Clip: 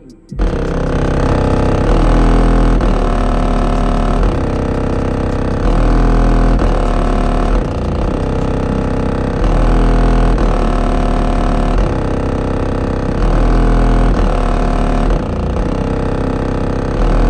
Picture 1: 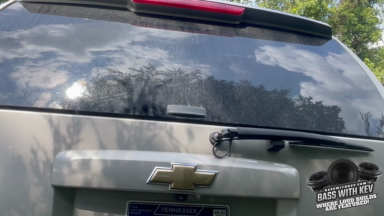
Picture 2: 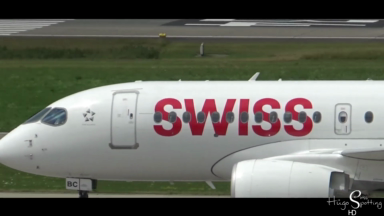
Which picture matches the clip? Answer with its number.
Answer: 1